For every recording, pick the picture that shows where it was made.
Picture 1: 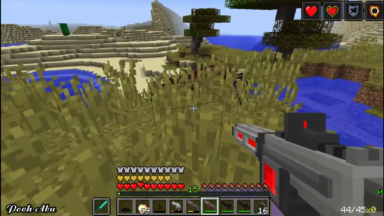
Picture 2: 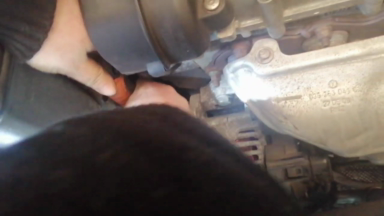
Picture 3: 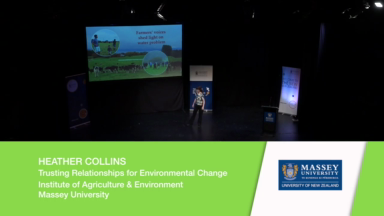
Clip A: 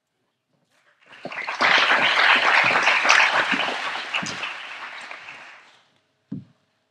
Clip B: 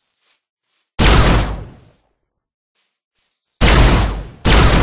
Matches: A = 3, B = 1